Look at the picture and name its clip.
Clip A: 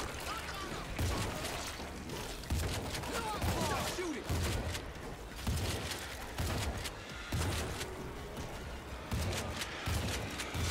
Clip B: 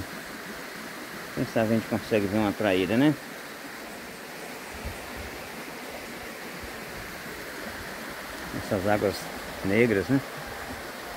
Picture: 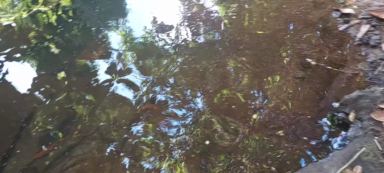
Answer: B